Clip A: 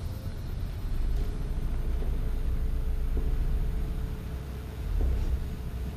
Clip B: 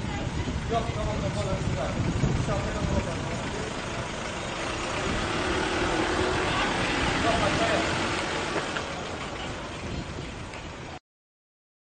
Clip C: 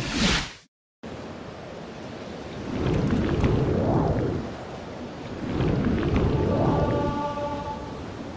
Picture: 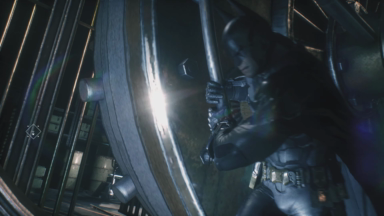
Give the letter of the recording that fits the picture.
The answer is A